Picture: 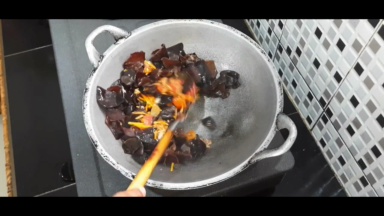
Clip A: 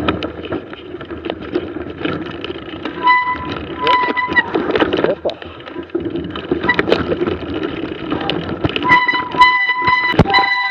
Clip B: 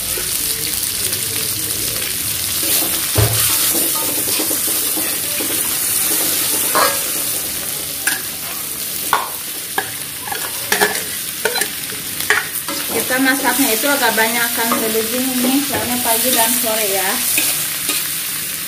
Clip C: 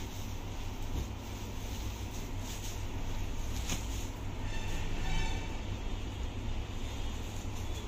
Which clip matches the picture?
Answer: B